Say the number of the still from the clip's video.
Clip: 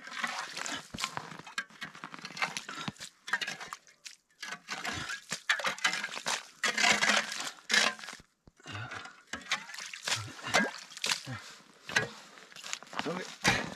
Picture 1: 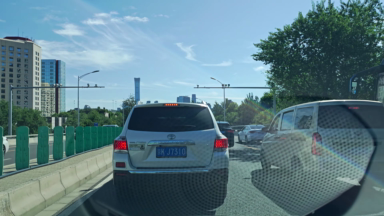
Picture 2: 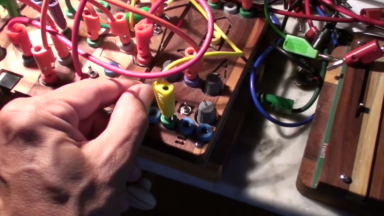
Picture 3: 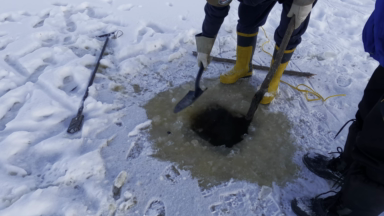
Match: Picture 3